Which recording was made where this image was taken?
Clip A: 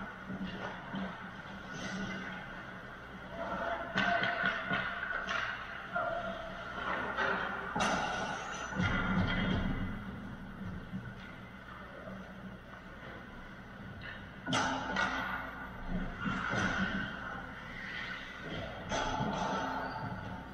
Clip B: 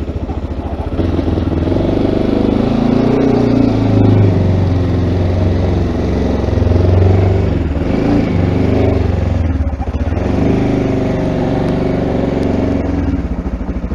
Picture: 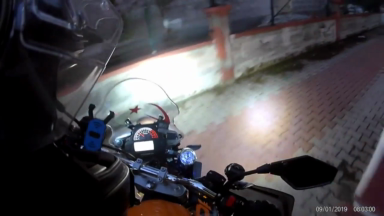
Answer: B